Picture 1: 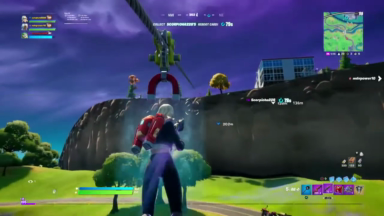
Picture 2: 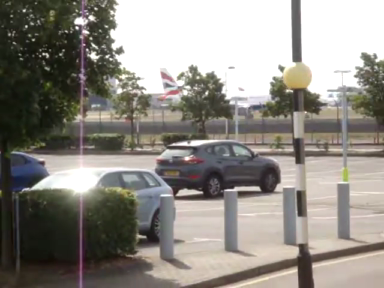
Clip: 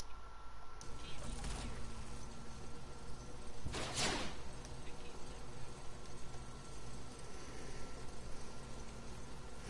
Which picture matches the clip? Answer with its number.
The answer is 1